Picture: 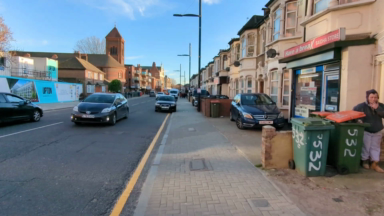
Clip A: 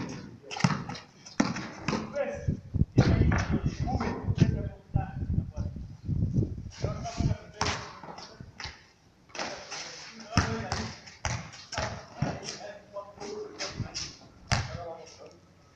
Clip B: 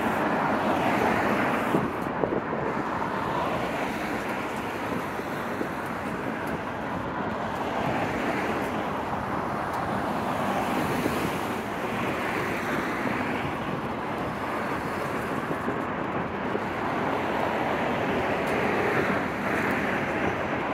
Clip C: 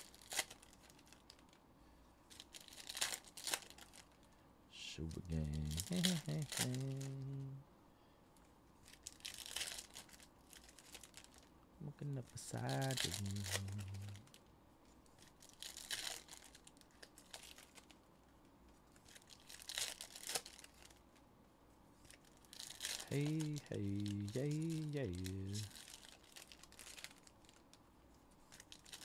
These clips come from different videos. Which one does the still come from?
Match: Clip B